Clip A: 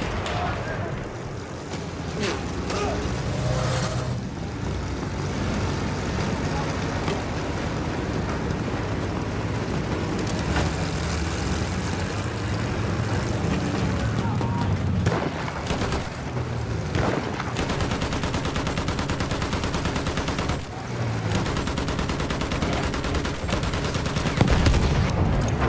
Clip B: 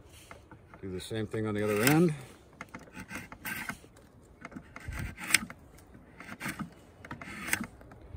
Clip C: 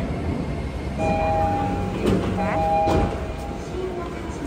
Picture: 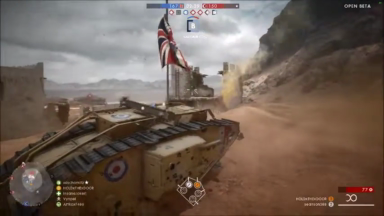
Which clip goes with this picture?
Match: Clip A